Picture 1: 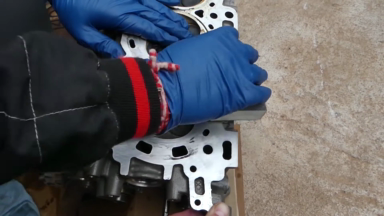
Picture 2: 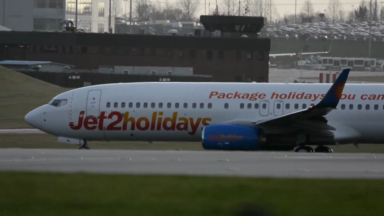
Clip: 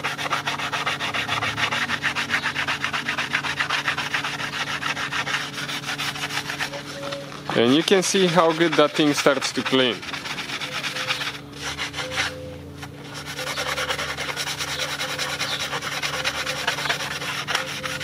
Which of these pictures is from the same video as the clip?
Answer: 1